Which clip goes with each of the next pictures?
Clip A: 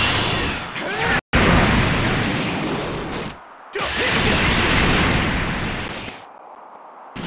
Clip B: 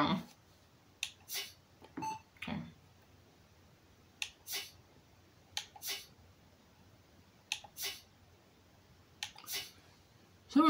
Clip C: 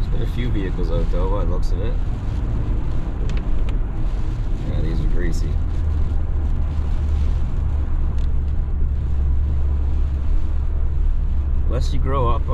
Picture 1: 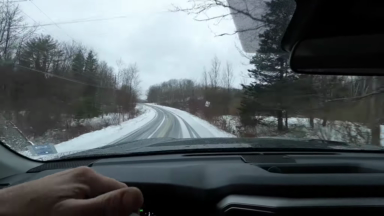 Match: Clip C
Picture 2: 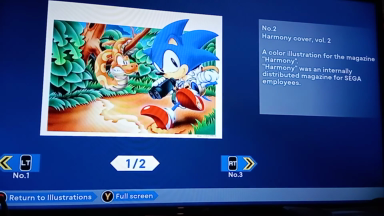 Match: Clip B